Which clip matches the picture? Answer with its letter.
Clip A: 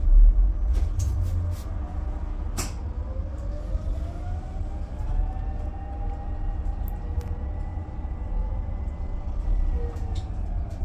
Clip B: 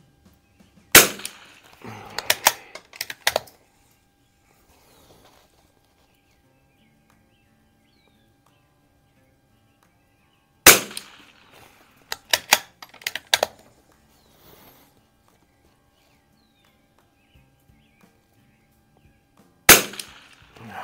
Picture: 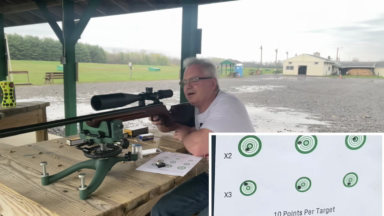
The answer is B